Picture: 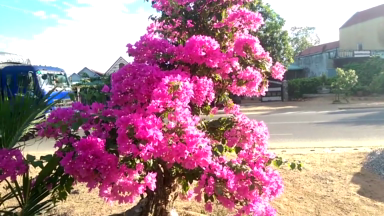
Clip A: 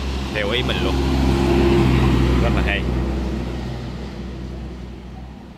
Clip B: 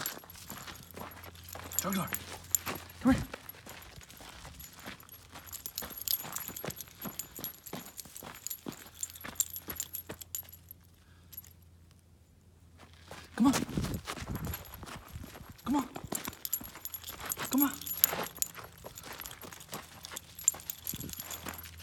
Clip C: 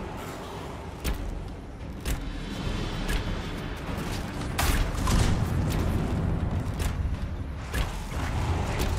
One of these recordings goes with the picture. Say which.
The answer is A